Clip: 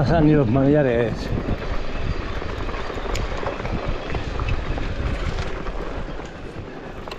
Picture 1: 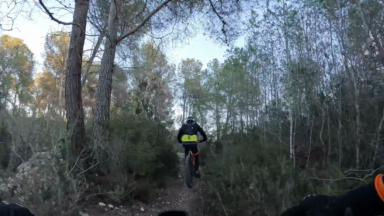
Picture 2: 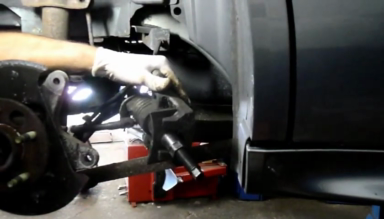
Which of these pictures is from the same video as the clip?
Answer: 1